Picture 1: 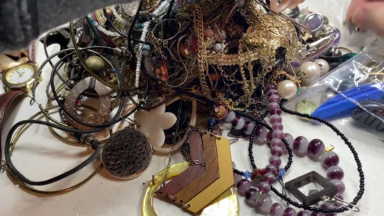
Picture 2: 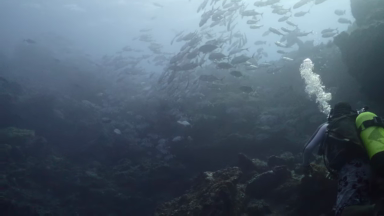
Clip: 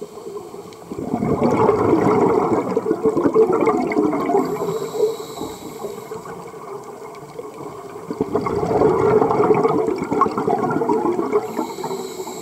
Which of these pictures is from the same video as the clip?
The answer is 2